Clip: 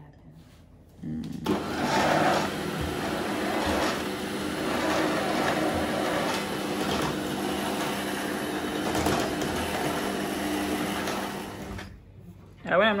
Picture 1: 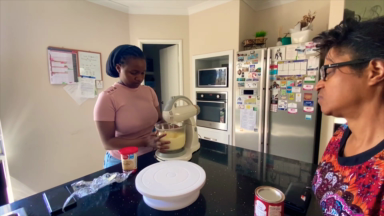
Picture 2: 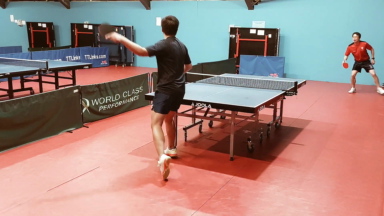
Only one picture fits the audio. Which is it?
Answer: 1